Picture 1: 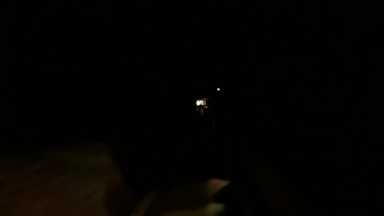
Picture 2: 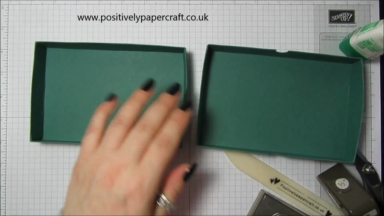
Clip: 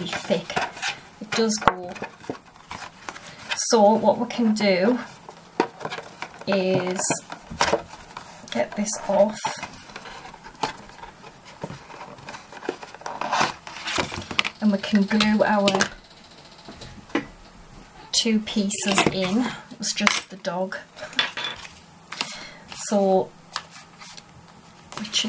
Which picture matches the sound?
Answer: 2